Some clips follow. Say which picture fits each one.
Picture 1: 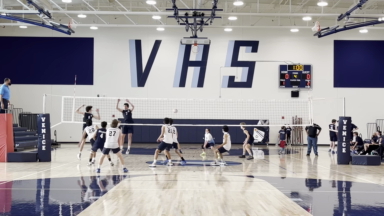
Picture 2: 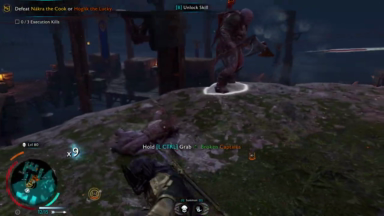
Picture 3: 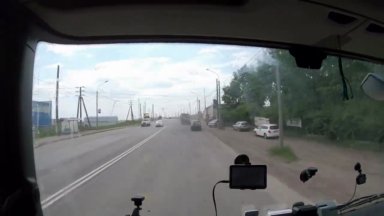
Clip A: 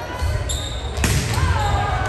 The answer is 1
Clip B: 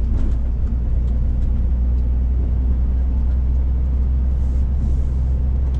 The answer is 3